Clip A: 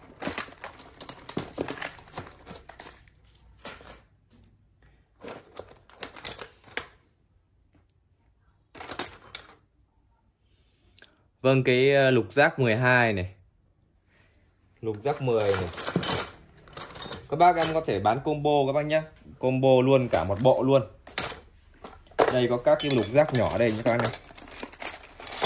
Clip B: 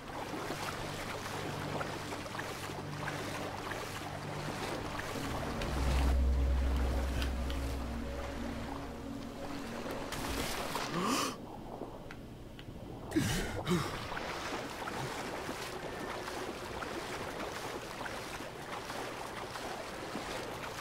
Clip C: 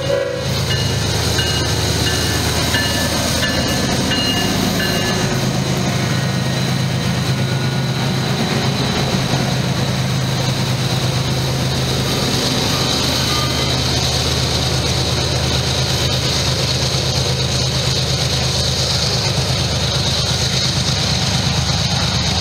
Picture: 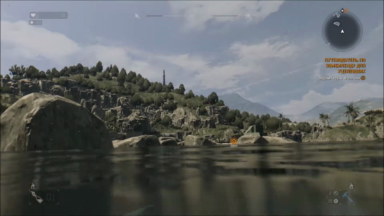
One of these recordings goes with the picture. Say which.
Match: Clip B